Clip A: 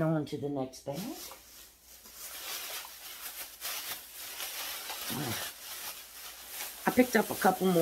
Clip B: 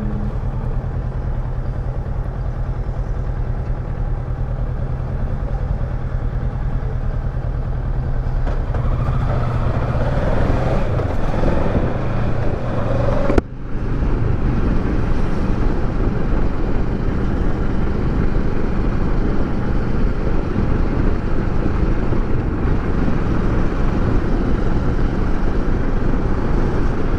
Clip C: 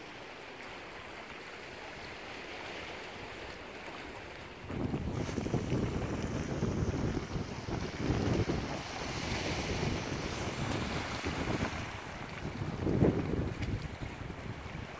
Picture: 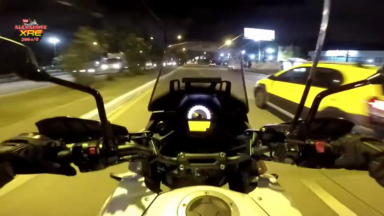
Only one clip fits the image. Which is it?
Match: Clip B